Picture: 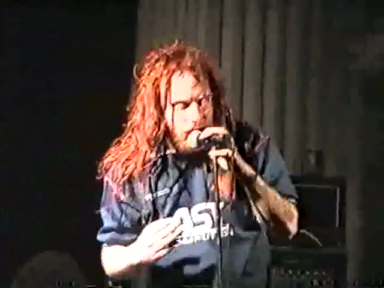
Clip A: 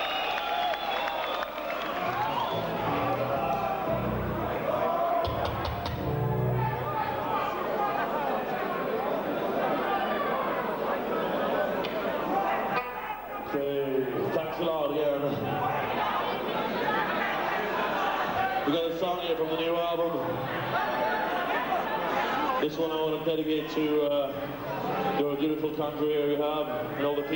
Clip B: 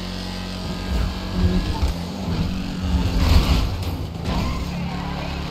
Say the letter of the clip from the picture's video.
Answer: A